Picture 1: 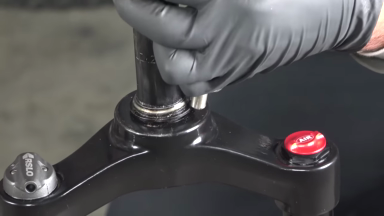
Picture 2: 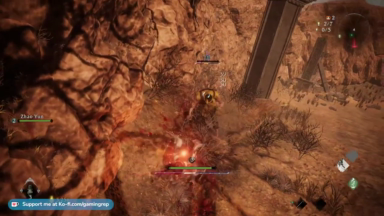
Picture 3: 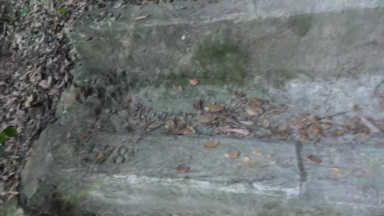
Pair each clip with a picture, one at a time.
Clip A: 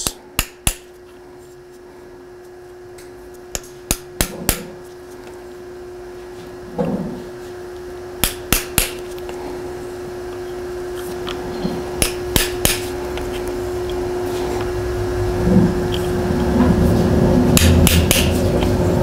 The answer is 1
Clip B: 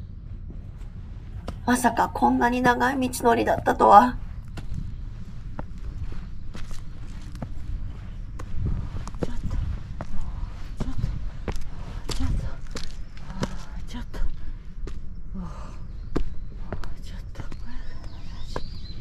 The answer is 3